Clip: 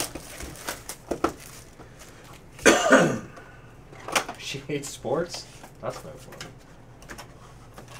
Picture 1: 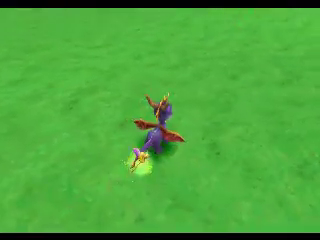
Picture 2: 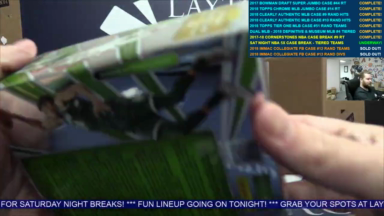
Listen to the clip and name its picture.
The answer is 2